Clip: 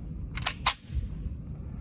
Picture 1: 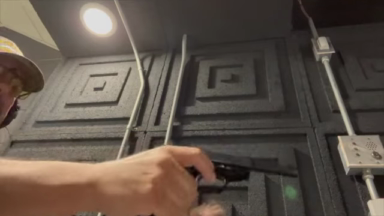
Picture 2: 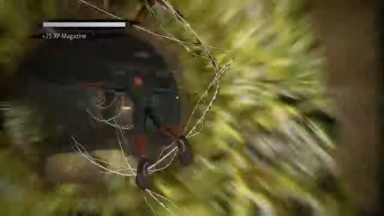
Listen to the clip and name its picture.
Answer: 1